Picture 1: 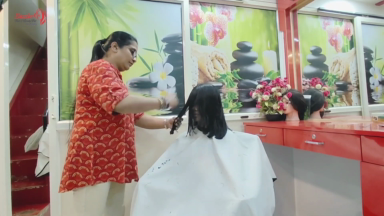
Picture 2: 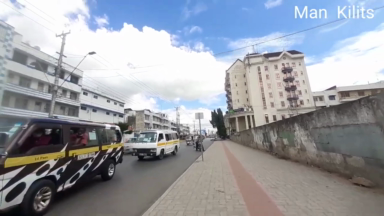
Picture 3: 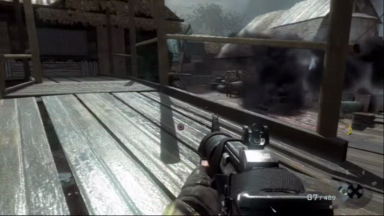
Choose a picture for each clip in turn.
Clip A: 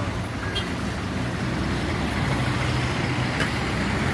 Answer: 2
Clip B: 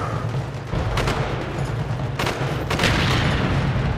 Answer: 3